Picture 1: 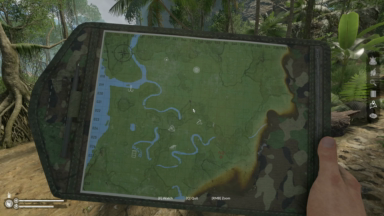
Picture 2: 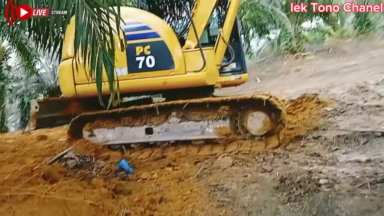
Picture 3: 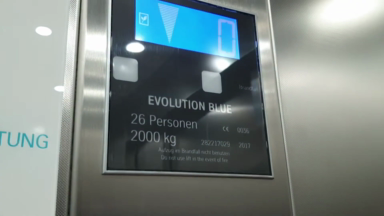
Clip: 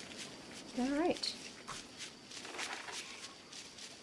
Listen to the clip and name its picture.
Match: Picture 1